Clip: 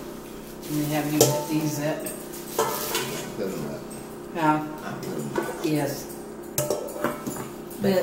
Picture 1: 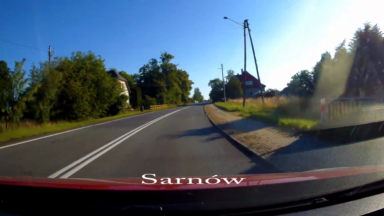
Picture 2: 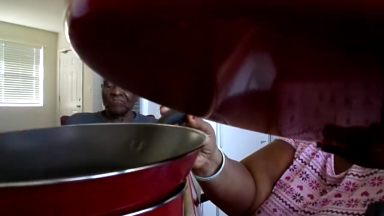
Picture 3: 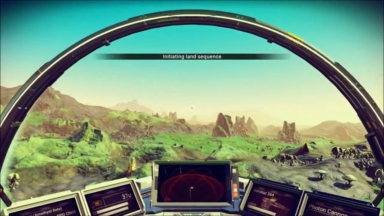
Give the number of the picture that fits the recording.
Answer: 2